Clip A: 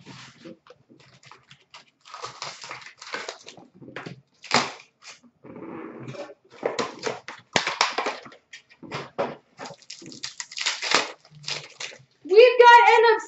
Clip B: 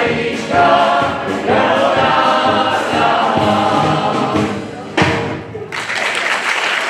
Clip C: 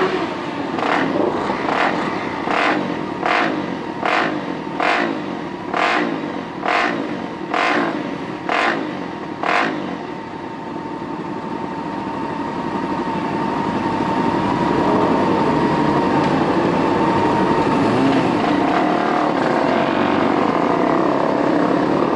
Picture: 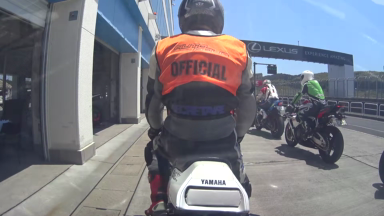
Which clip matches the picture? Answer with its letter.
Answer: C